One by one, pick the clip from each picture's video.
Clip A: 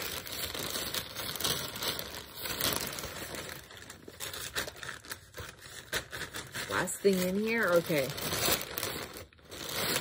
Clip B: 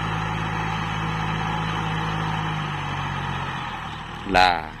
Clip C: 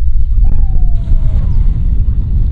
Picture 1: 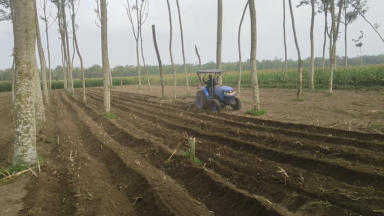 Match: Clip B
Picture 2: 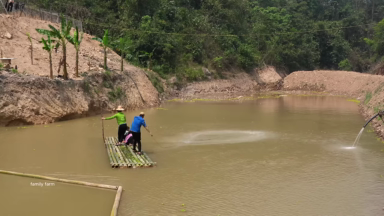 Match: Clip C